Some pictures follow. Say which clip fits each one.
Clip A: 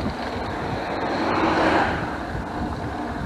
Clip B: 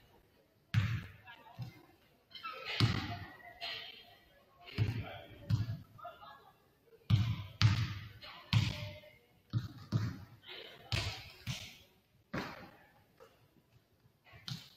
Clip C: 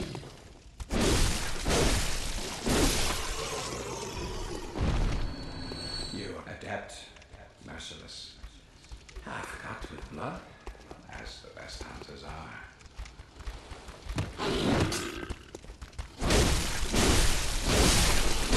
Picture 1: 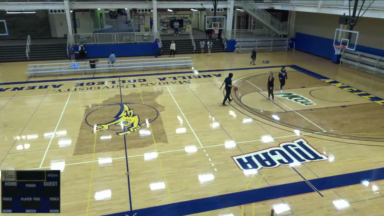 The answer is B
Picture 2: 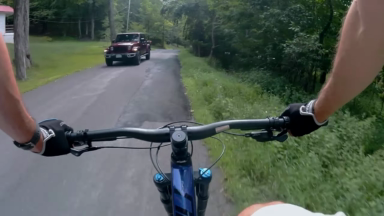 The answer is A